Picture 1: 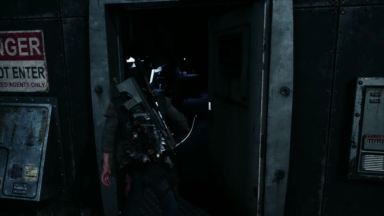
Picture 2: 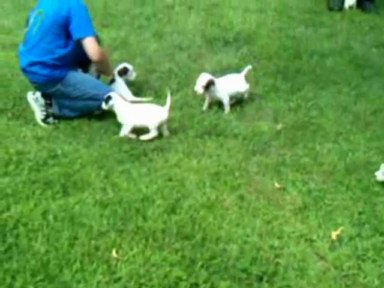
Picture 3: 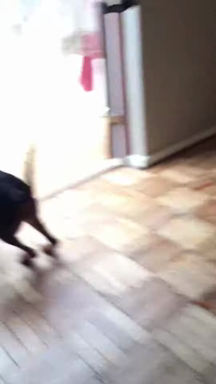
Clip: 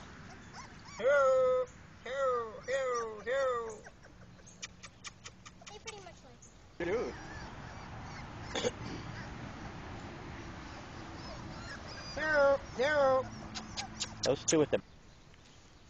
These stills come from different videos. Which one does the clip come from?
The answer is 2